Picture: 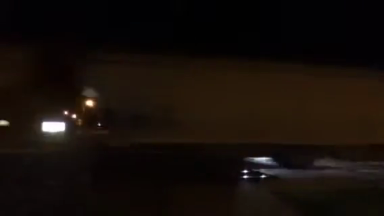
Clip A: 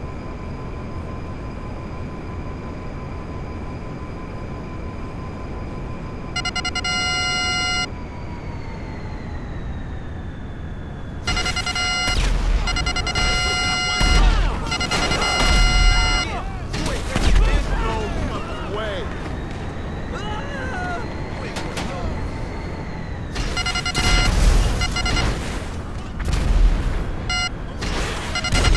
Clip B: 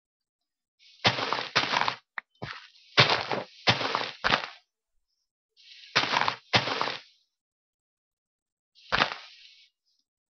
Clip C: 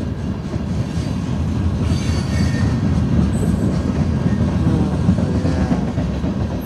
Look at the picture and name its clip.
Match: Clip C